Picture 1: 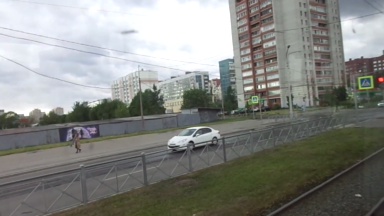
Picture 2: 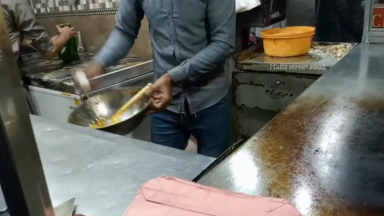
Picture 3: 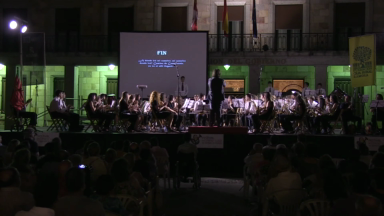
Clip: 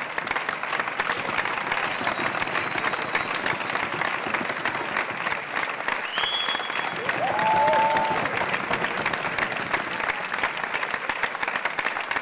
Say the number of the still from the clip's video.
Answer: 3